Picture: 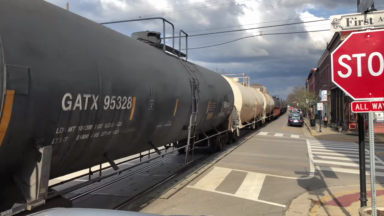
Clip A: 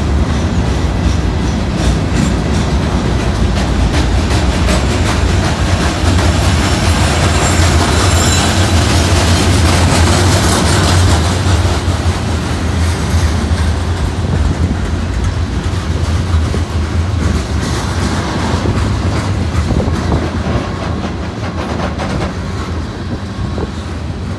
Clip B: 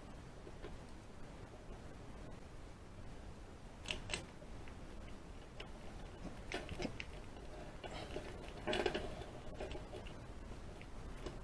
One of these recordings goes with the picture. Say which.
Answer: A